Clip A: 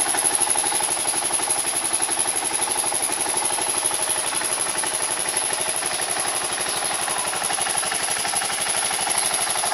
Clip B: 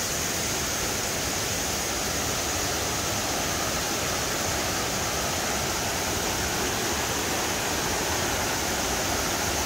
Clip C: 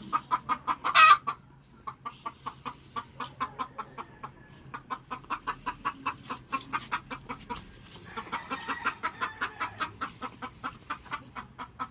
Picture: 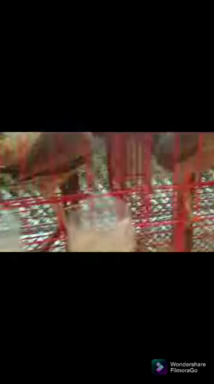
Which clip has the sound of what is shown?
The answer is C